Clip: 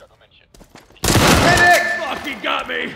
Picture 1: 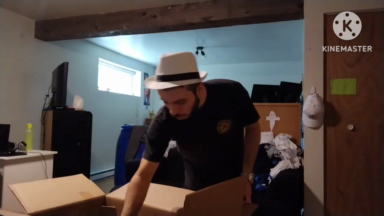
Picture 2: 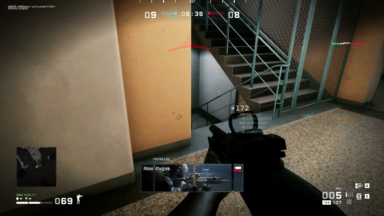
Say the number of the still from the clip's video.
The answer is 2